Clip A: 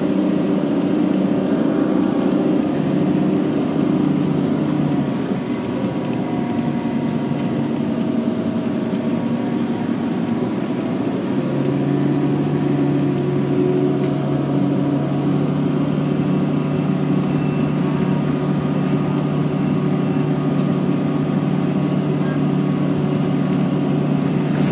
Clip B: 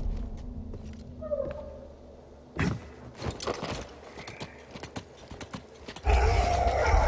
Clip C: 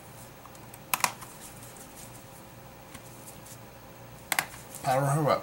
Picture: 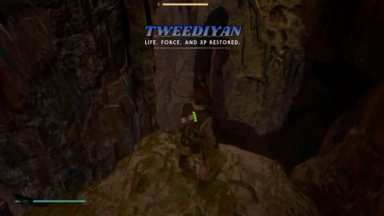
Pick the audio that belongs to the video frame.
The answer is B